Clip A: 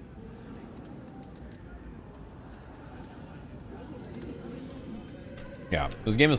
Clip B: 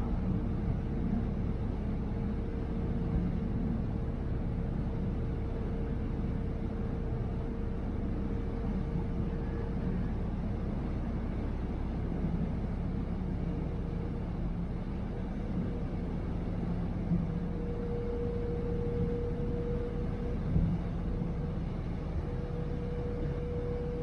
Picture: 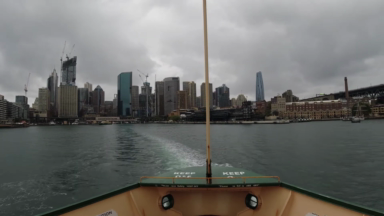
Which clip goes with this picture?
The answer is B